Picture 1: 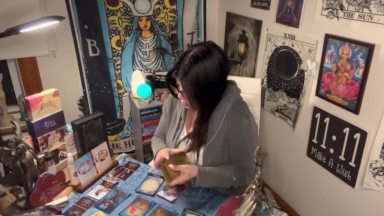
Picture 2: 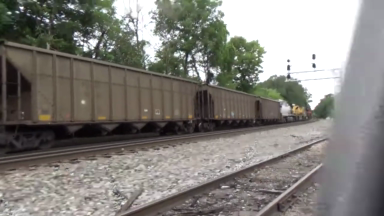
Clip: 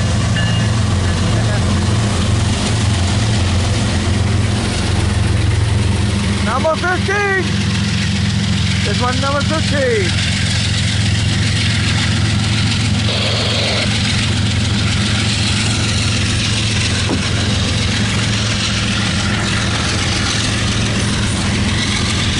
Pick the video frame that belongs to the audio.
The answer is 2